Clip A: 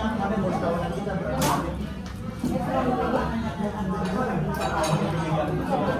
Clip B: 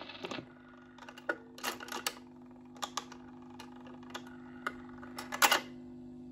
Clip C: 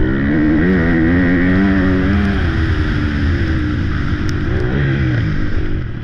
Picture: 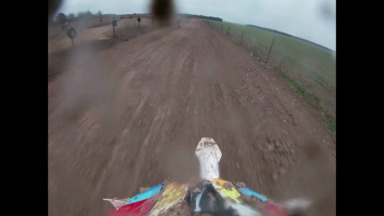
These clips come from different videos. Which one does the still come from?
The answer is C